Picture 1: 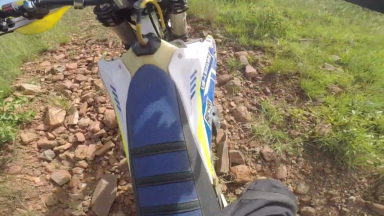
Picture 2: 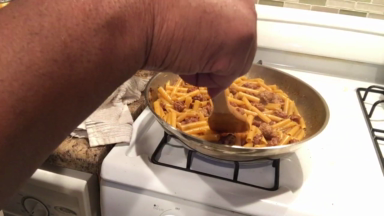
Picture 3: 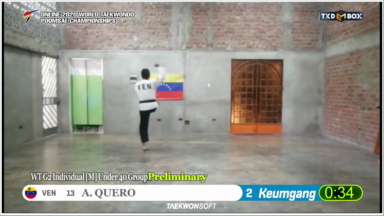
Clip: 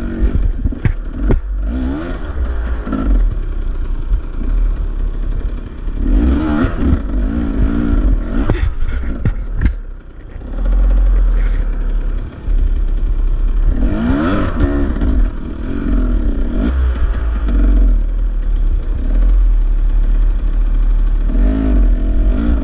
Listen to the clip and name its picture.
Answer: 1